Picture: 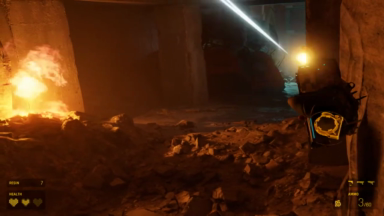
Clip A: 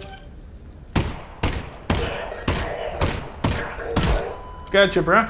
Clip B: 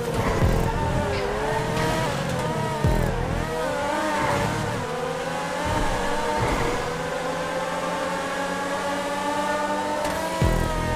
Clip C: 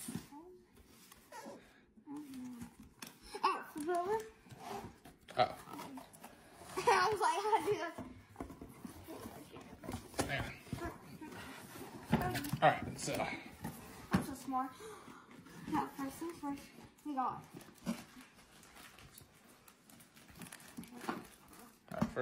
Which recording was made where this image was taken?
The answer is A